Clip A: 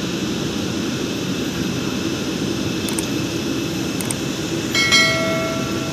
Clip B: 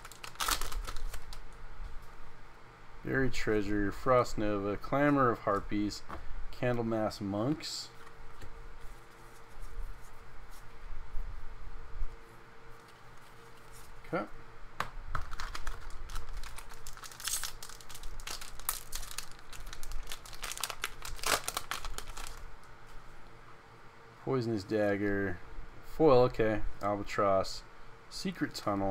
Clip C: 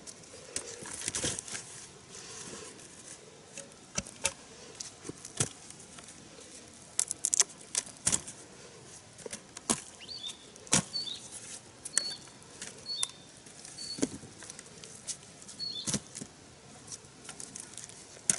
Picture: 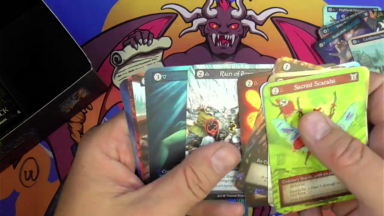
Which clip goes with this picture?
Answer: B